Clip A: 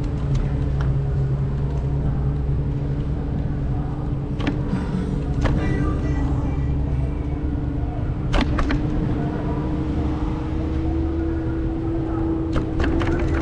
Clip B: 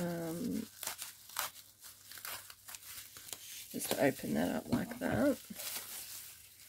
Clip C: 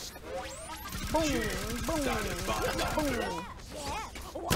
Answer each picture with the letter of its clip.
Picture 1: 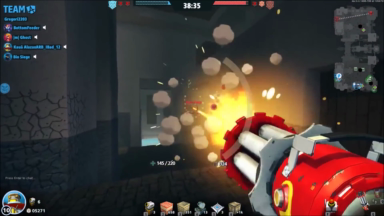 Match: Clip C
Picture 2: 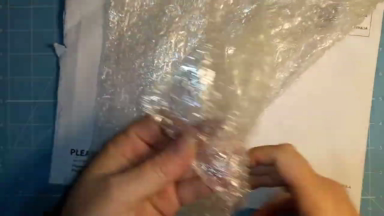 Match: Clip B